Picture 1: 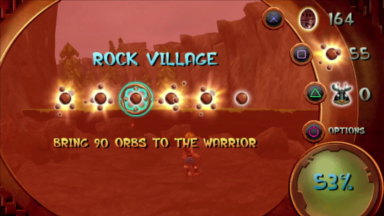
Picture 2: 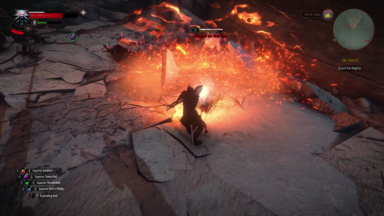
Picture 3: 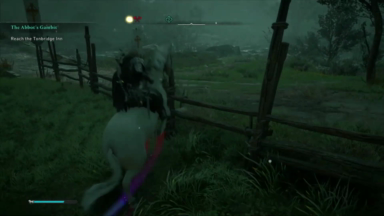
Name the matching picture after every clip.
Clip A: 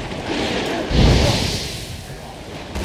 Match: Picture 2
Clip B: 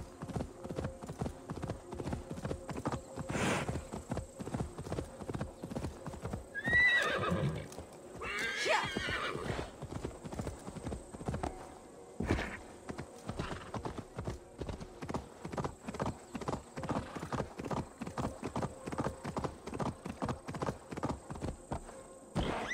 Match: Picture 3